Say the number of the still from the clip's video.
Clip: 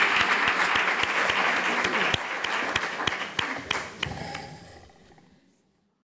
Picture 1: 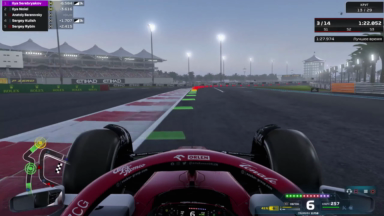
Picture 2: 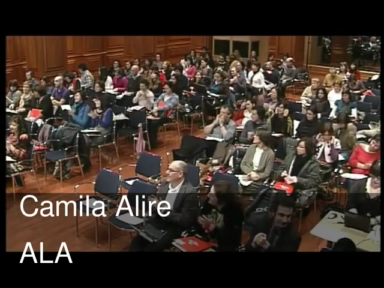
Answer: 2